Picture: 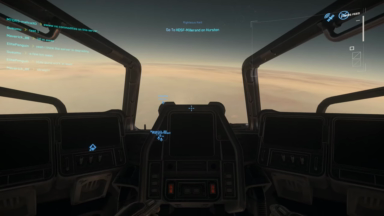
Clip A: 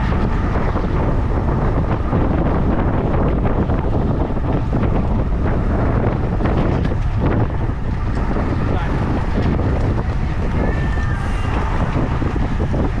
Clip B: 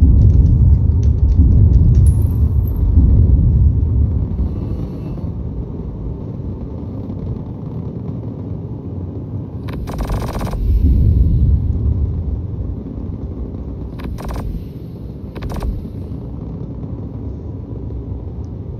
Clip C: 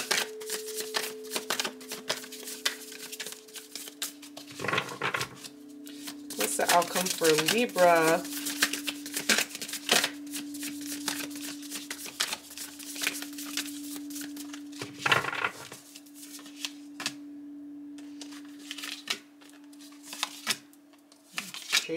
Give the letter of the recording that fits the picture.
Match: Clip B